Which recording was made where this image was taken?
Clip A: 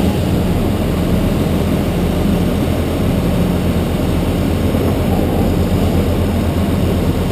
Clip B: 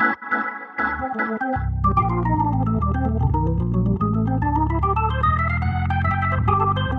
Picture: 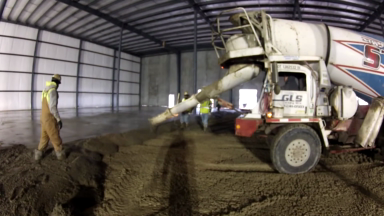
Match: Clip A